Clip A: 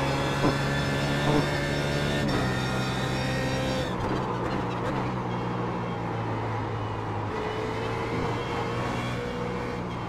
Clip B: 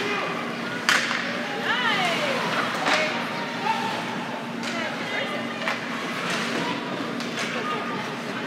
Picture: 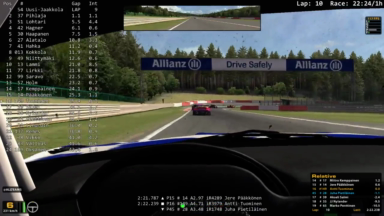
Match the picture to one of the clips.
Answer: A